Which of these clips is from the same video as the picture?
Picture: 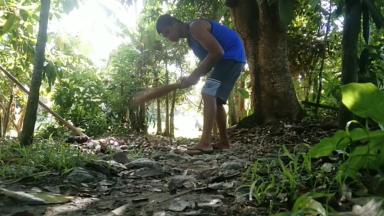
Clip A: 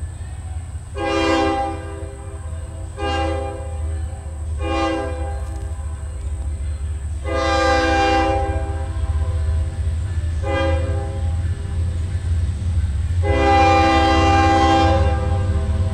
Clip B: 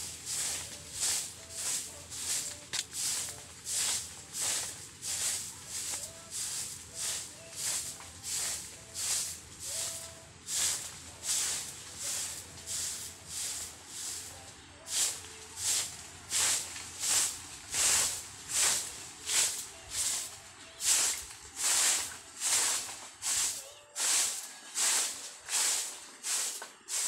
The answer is B